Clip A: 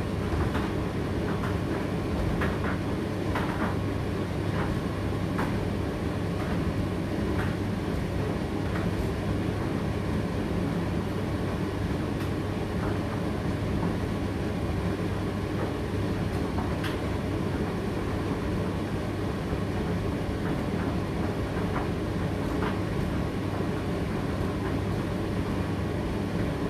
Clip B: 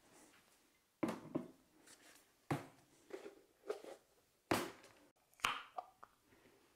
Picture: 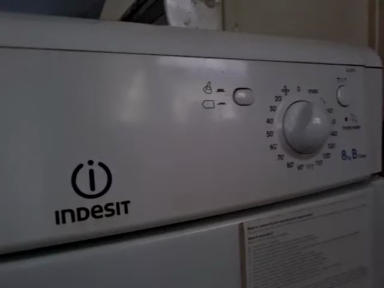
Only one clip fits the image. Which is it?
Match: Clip A